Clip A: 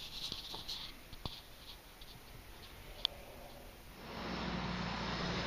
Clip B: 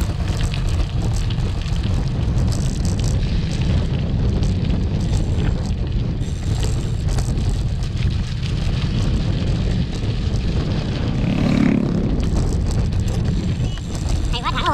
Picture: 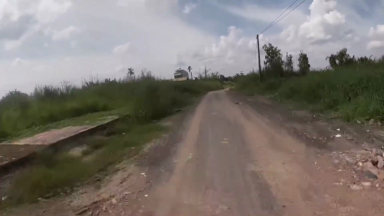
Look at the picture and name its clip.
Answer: B